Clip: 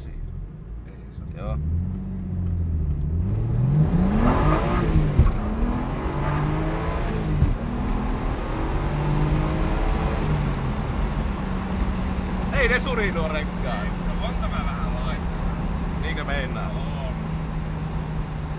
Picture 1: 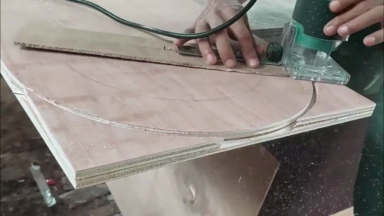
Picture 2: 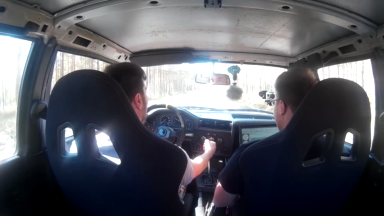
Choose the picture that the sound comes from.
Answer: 2